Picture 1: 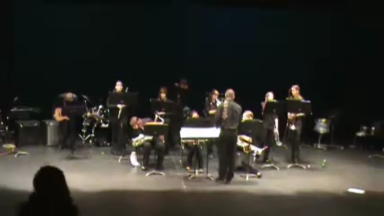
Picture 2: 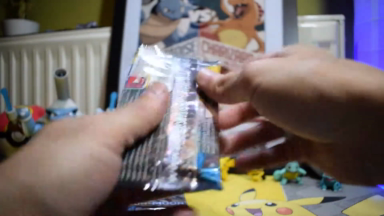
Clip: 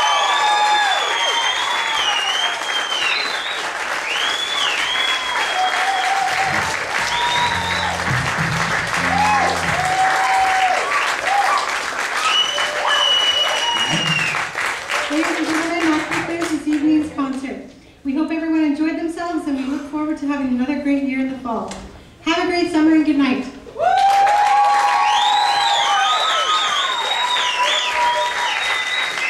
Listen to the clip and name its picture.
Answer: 1